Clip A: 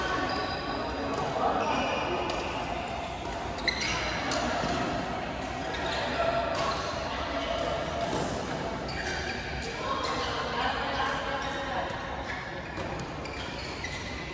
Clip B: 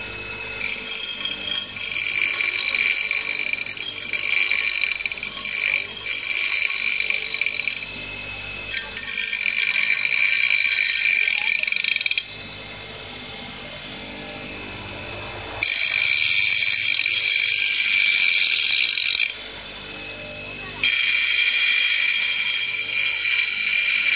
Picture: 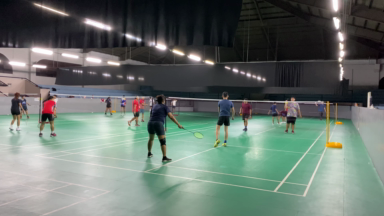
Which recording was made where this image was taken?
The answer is A